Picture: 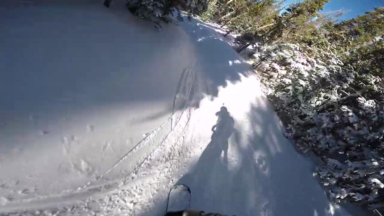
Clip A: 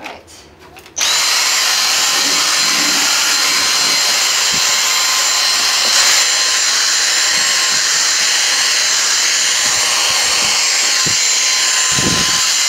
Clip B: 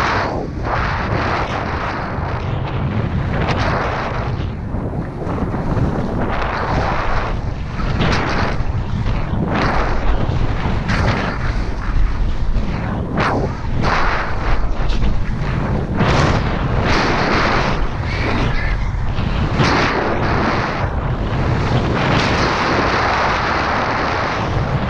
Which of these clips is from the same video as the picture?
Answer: B